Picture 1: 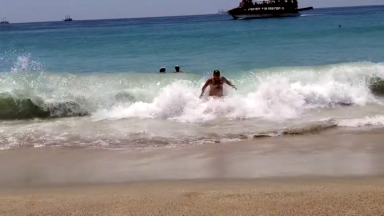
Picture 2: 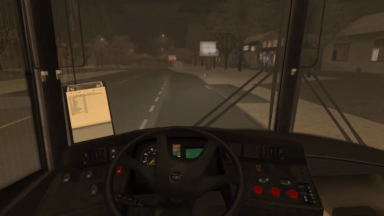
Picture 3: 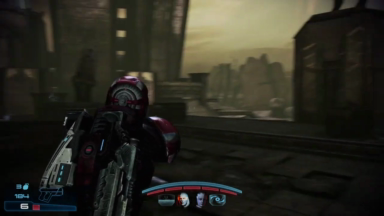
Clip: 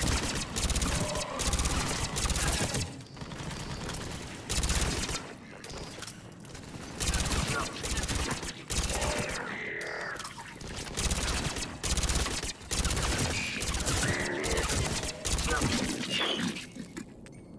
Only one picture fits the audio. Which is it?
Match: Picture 3